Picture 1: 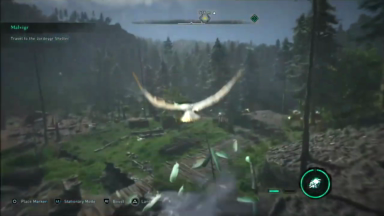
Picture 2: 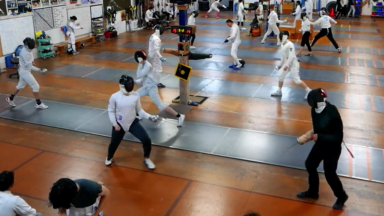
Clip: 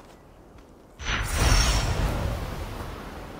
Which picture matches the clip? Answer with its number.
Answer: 1